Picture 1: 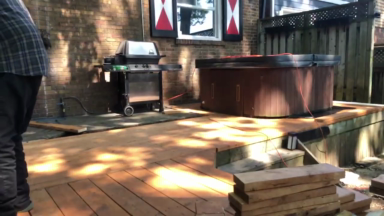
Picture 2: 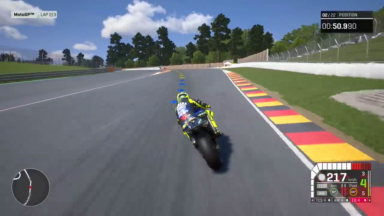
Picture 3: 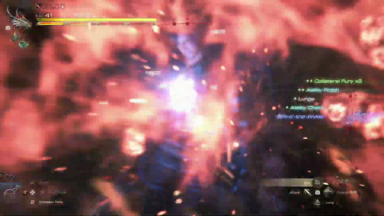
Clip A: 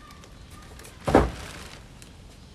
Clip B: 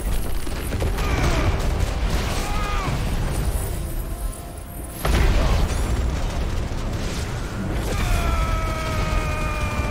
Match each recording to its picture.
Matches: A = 1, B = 3